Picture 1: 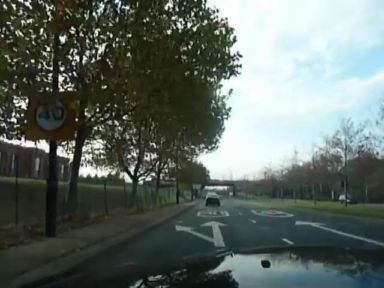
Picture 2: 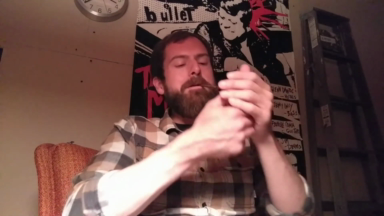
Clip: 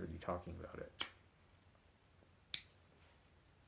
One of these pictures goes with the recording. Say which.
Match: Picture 2